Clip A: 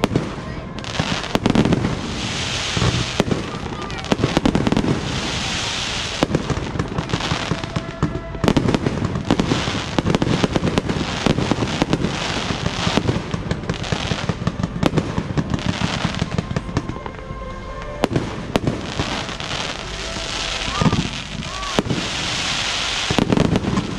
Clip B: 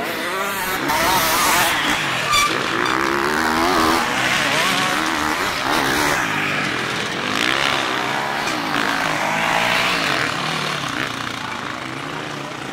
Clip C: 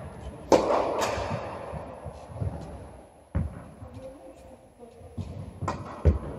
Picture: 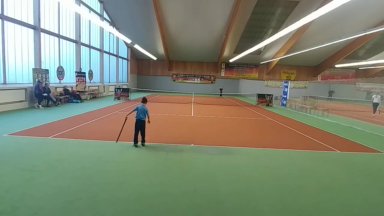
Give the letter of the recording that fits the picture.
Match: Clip C